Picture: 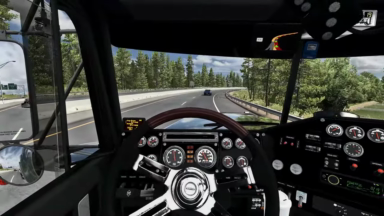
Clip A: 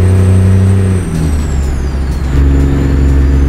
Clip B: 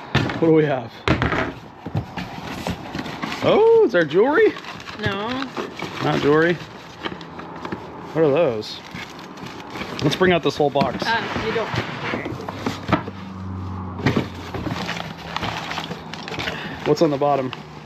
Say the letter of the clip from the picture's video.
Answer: A